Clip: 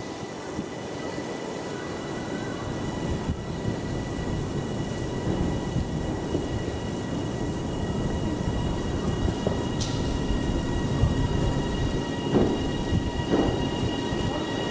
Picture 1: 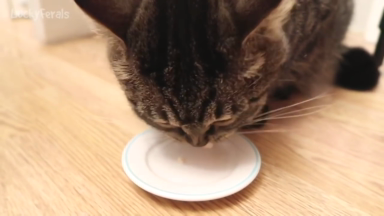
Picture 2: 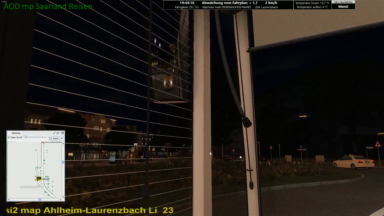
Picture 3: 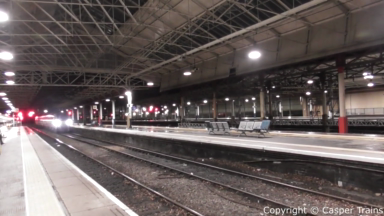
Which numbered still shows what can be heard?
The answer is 3